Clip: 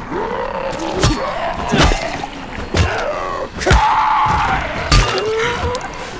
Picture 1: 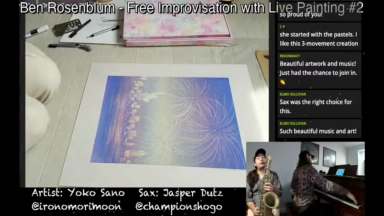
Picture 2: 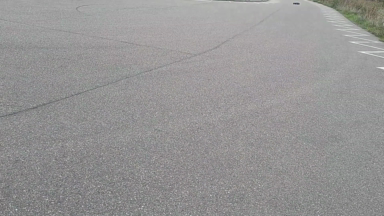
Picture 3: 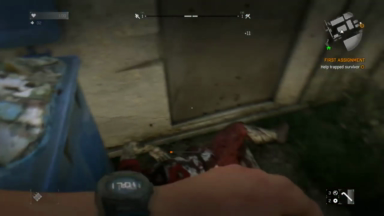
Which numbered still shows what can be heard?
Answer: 3